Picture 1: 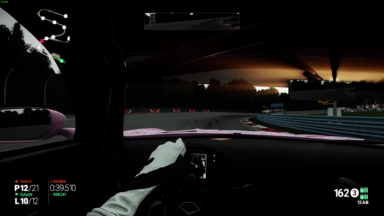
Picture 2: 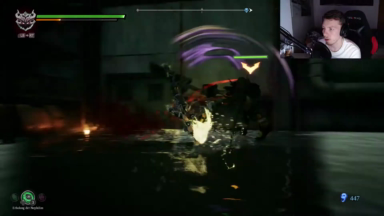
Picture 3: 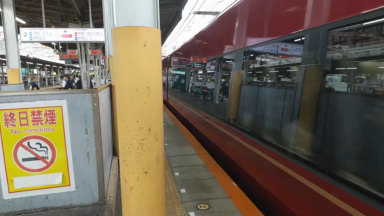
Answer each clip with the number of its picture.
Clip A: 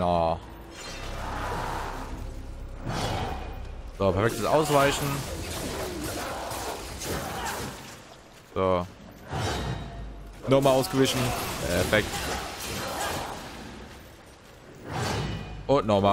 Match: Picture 2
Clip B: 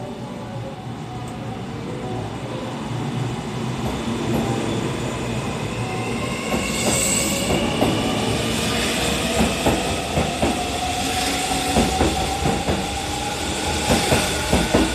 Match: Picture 3